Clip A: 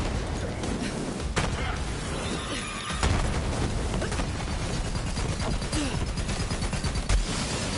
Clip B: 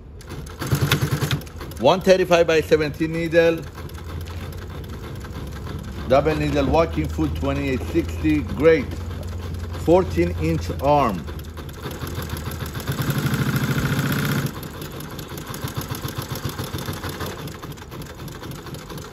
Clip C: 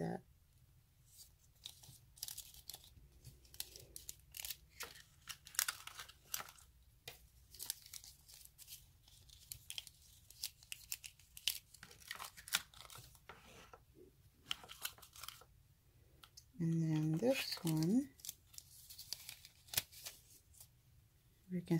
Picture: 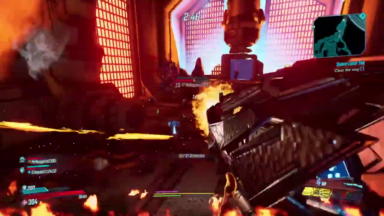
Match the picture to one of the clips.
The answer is A